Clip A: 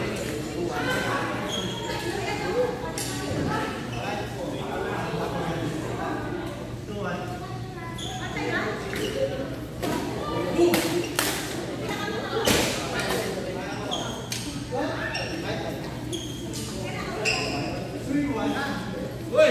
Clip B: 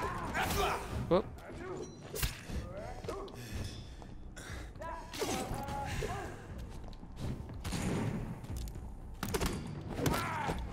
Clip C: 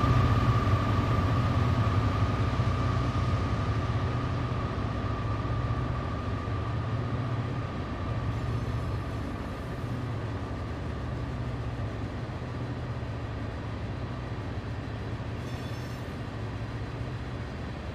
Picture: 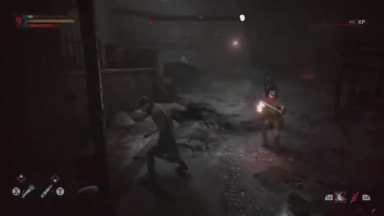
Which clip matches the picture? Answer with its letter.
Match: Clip B